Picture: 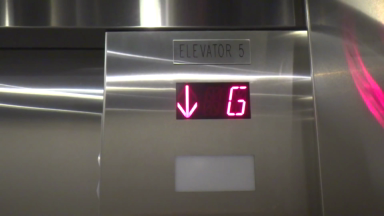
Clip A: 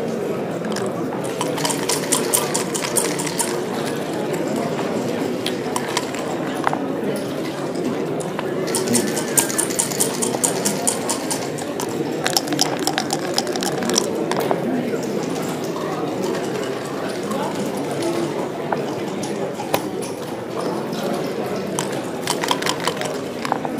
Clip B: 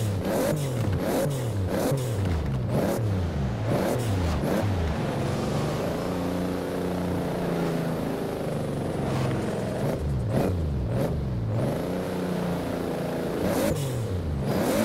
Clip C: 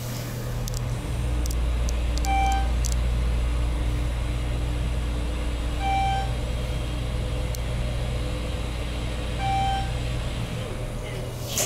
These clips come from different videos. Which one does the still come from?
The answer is C